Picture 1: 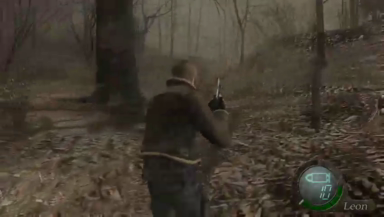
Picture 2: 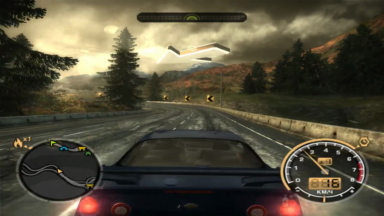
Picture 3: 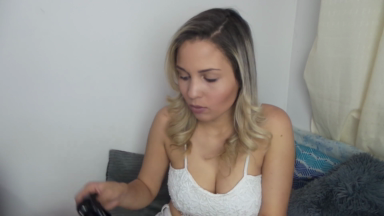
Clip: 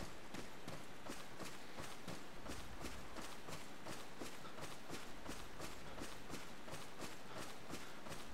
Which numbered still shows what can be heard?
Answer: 1